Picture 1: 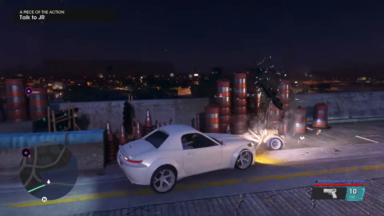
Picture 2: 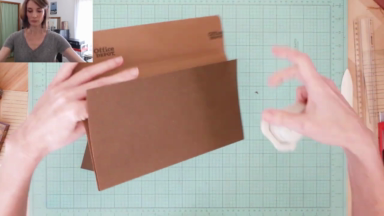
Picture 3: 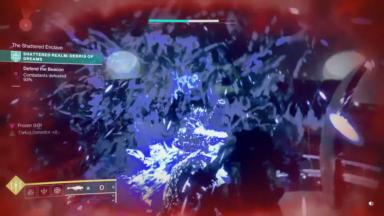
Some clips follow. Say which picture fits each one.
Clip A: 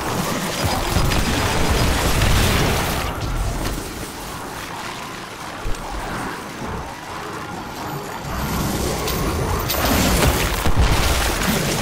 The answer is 3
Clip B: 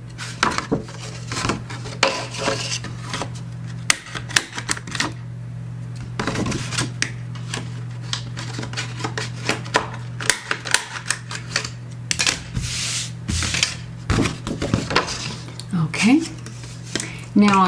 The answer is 2